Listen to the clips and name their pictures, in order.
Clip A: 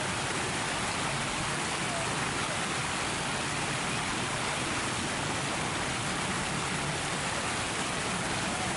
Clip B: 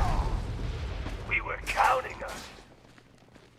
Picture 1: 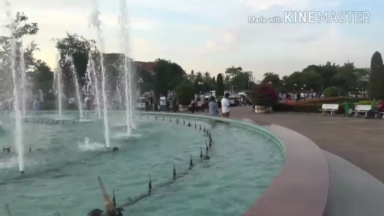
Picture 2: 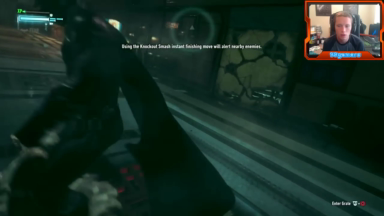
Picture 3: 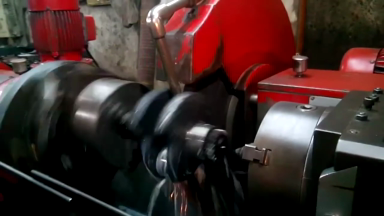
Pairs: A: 1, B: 2